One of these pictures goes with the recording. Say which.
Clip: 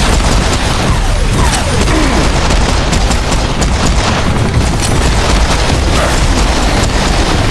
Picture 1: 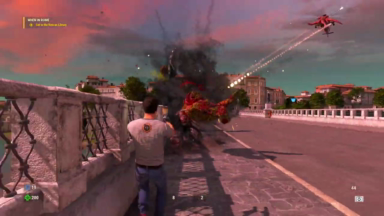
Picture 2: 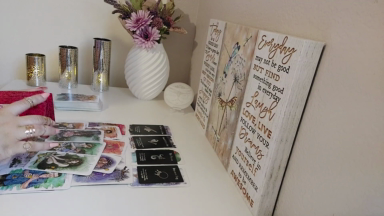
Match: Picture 1